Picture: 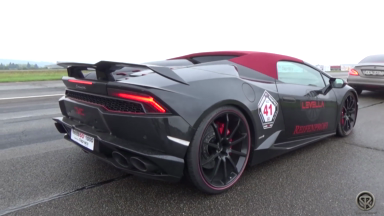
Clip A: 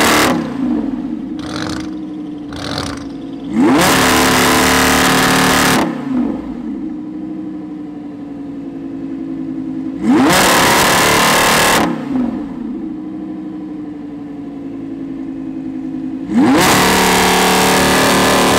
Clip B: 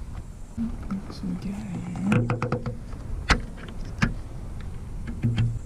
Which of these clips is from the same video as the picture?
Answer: A